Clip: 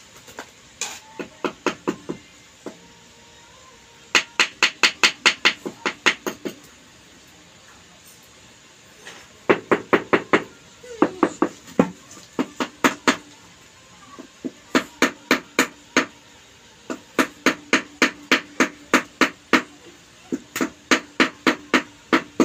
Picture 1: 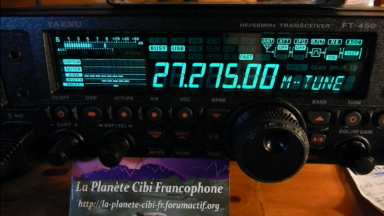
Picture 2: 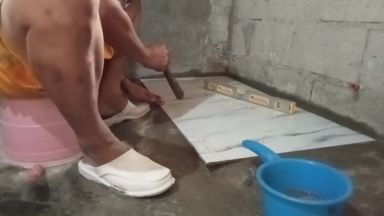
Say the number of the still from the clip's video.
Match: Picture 2